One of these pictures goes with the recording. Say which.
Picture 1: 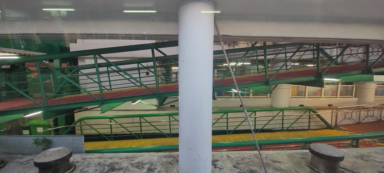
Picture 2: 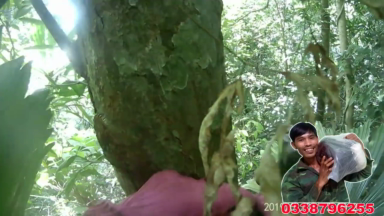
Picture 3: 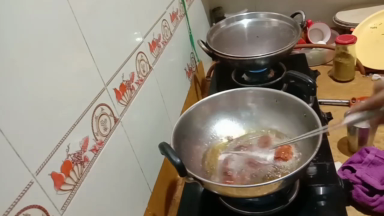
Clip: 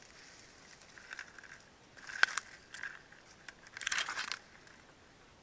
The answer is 2